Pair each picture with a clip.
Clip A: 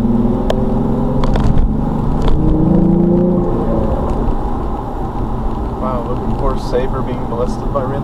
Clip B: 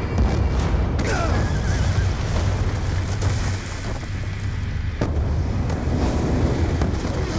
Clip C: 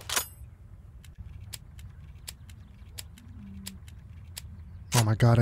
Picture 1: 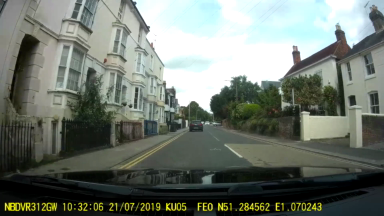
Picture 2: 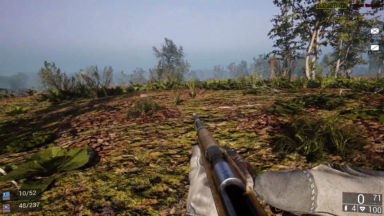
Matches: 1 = A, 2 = C